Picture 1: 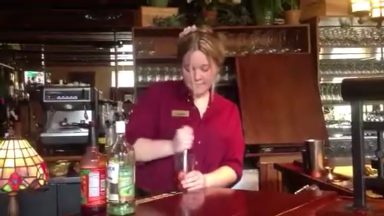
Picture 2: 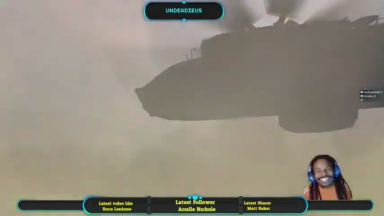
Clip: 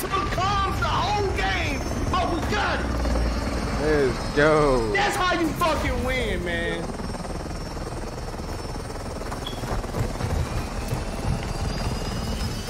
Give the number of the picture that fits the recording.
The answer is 2